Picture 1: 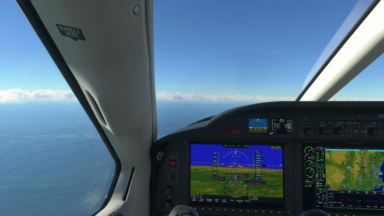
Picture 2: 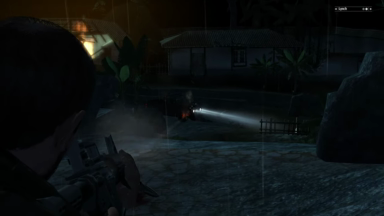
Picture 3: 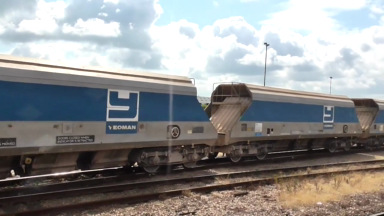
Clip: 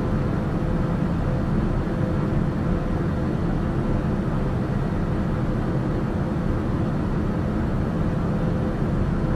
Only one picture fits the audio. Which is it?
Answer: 1